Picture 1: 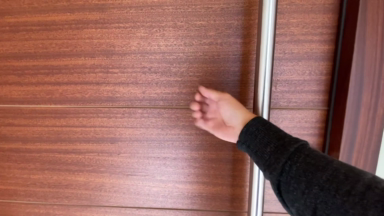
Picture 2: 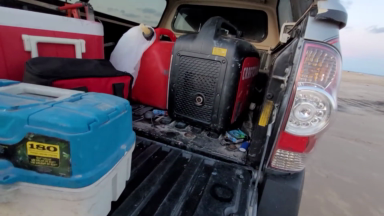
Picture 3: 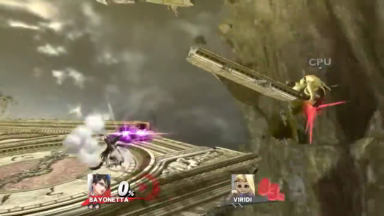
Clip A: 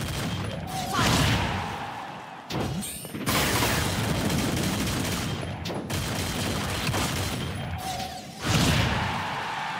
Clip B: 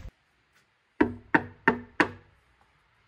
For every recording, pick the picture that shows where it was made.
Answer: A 3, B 1